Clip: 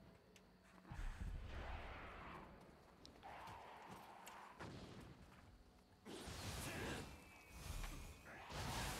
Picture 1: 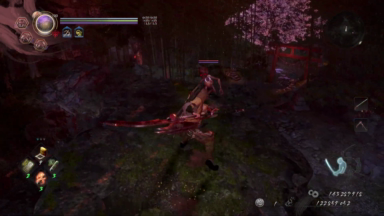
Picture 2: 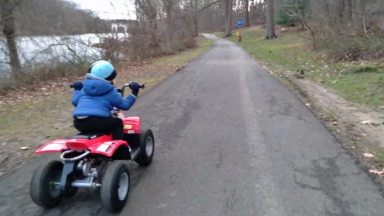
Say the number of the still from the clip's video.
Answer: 1